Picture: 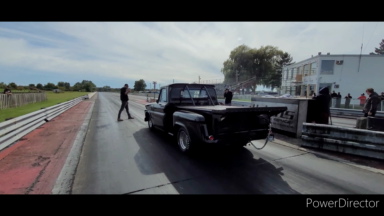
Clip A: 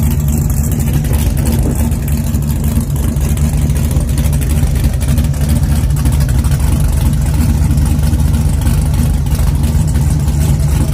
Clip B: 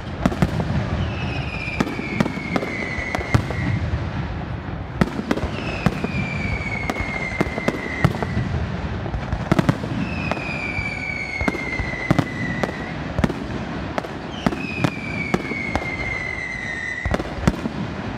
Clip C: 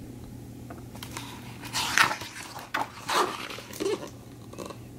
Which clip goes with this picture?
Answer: A